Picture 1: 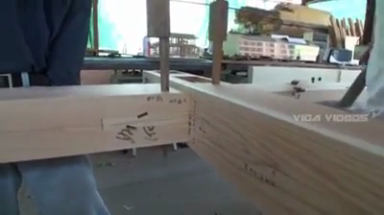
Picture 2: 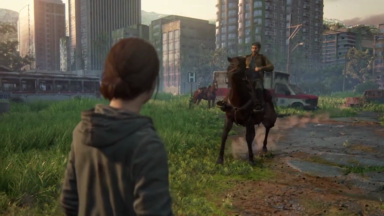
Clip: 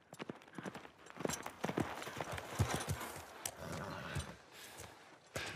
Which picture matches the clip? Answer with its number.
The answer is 2